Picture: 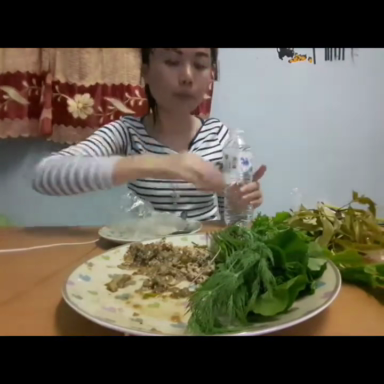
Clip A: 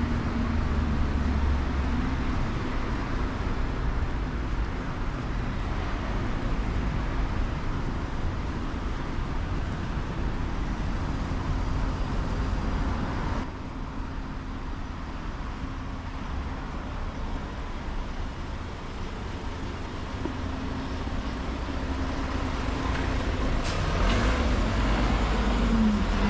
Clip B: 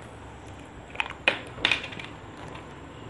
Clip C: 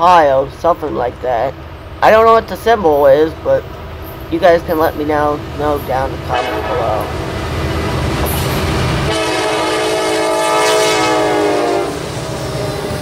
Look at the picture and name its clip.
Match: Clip B